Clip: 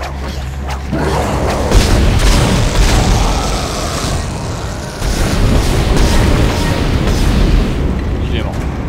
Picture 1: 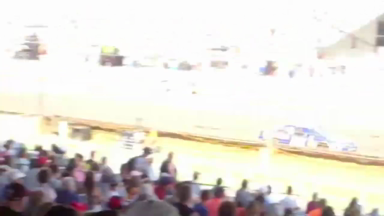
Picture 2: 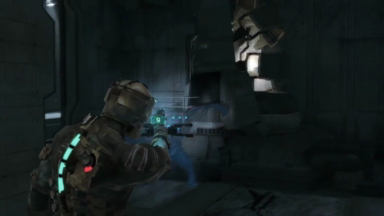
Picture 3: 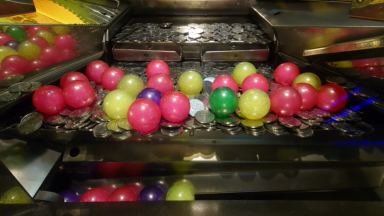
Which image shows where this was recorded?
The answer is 2